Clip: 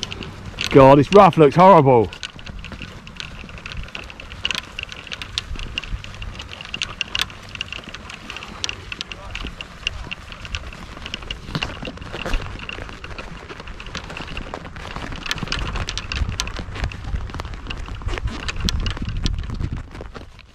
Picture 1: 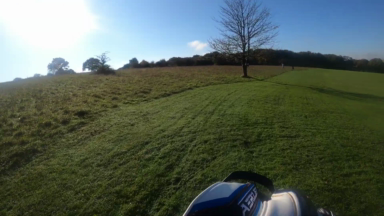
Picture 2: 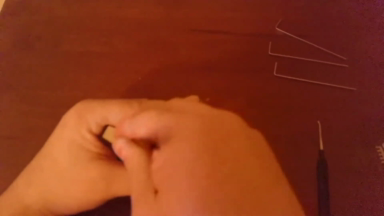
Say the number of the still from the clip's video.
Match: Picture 1